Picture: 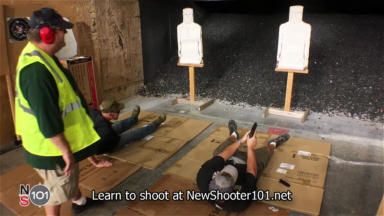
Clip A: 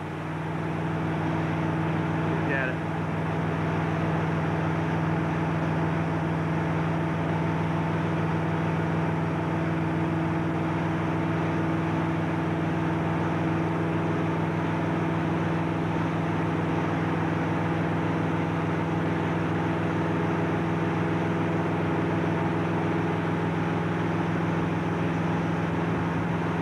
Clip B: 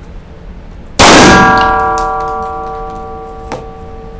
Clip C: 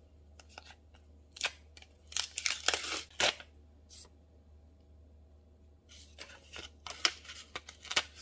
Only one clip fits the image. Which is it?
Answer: B